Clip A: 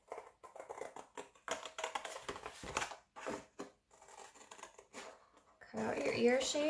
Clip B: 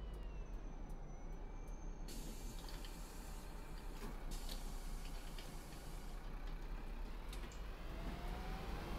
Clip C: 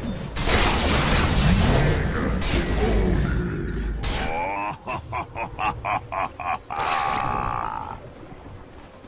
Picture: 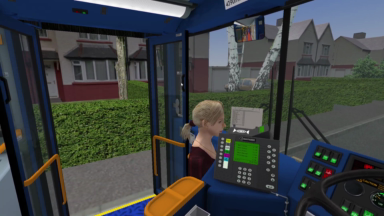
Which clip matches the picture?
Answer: B